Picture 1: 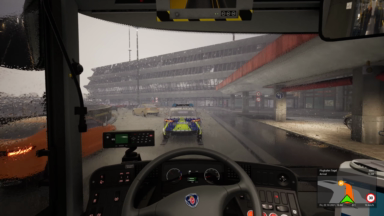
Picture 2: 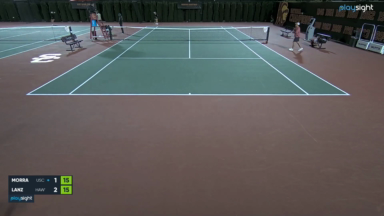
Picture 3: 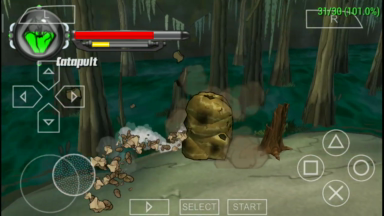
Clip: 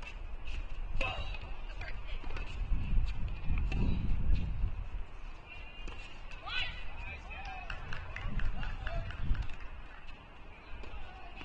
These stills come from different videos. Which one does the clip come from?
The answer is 2